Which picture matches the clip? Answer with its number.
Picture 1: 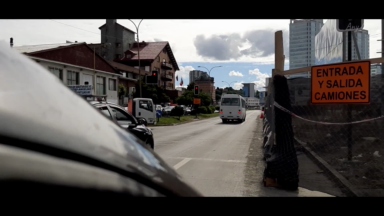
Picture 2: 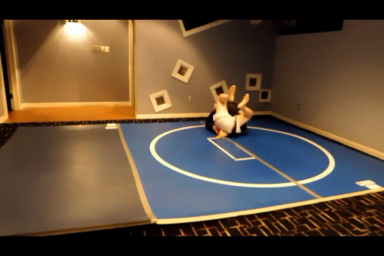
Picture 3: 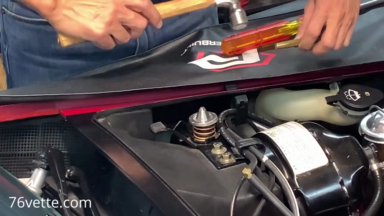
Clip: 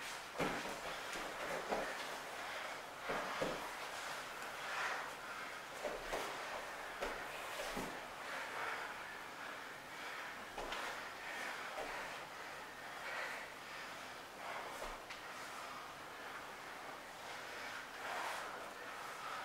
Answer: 2